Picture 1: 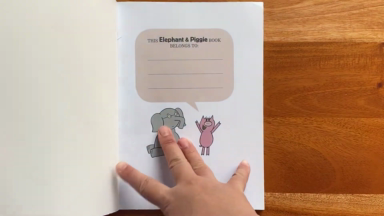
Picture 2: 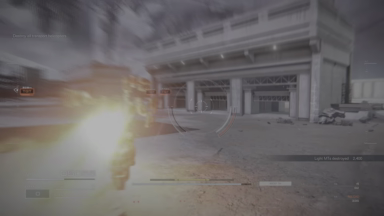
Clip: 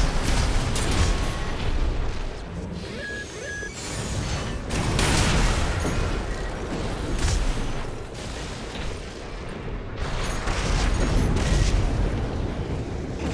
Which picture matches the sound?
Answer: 2